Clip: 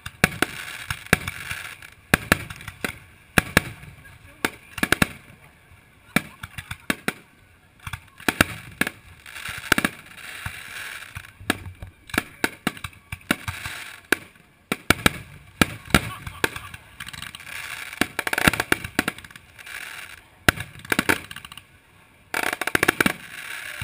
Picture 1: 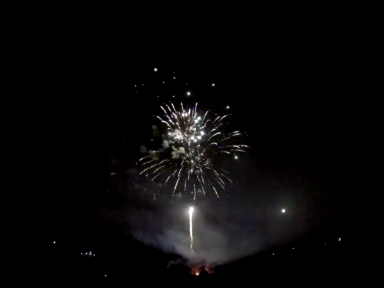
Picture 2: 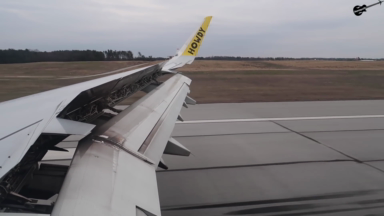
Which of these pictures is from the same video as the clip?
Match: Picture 1